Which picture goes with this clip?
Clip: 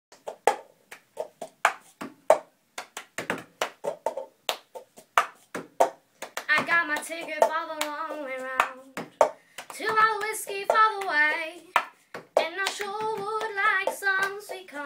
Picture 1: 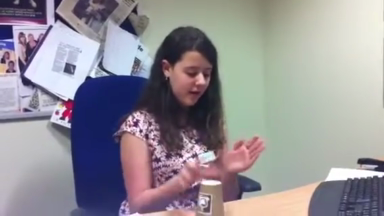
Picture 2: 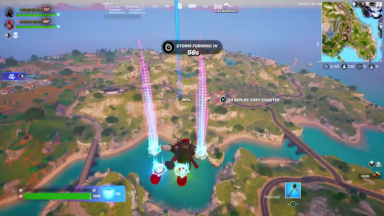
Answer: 1